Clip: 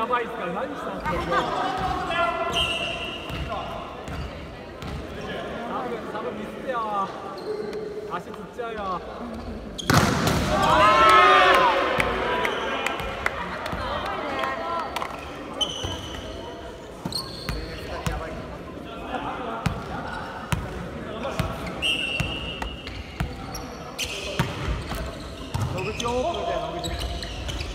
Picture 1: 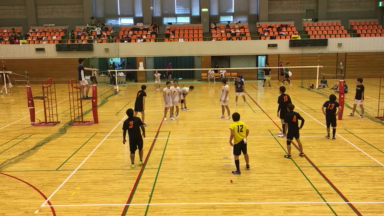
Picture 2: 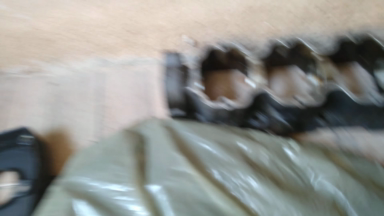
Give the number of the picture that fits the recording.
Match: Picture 1